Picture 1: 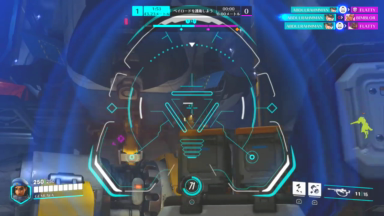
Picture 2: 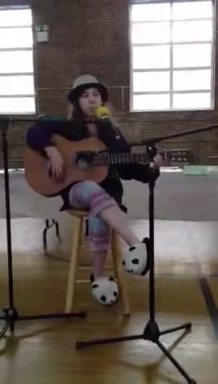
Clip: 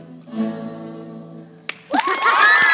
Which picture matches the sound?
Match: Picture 2